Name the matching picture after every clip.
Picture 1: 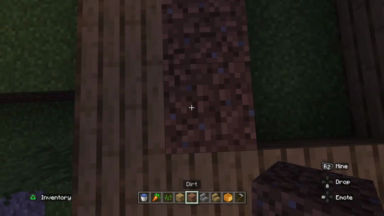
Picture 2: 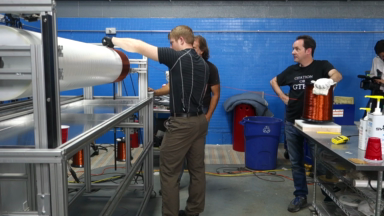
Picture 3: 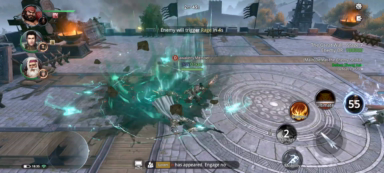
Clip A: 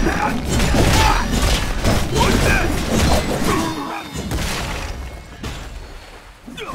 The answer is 3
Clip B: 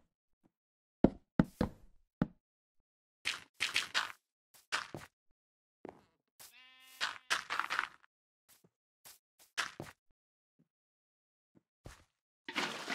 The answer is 1